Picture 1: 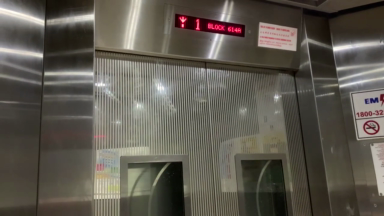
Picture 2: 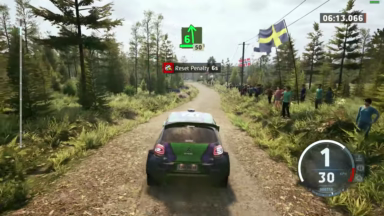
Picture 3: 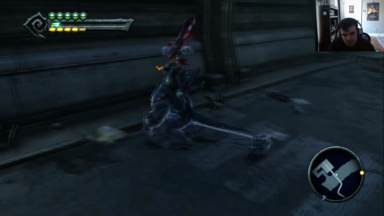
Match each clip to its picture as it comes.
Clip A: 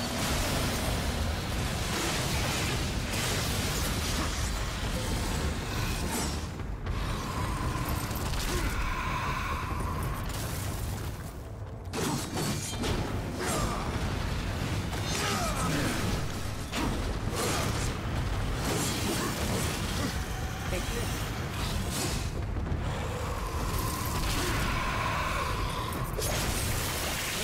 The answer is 3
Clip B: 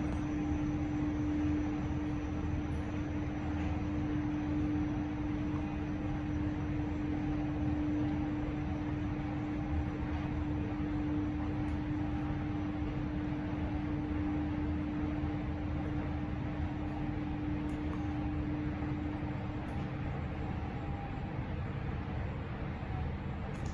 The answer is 1